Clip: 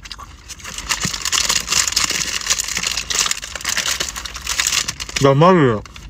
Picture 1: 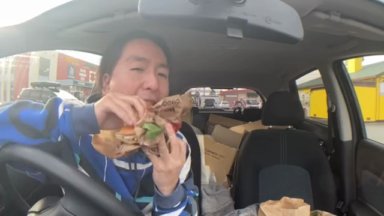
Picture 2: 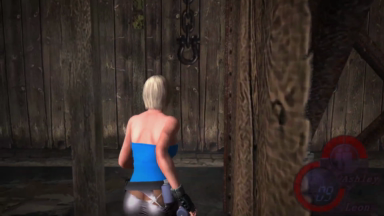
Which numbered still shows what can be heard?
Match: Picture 1